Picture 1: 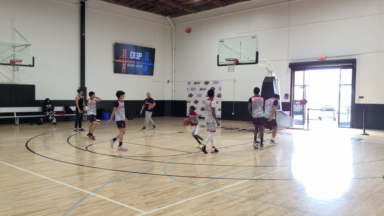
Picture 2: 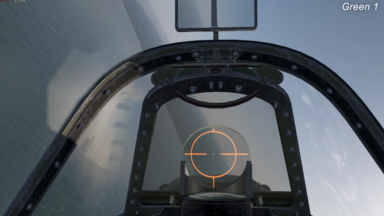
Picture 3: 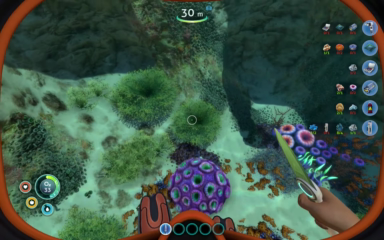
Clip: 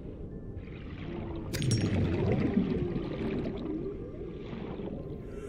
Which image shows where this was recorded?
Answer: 3